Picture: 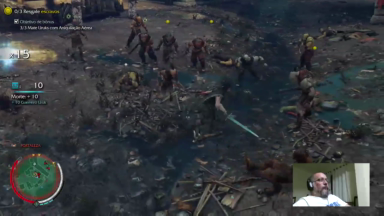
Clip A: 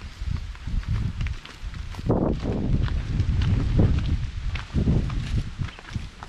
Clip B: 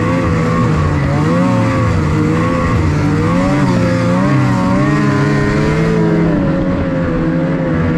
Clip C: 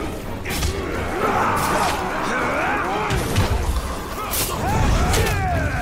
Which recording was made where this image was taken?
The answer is C